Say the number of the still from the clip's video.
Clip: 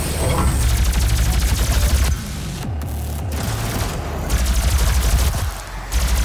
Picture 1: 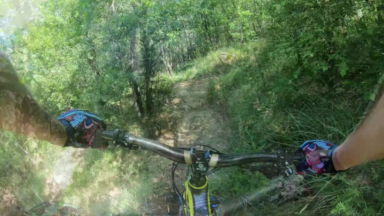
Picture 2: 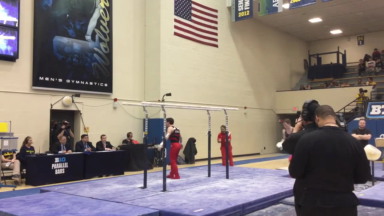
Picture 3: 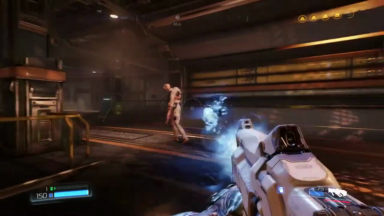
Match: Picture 3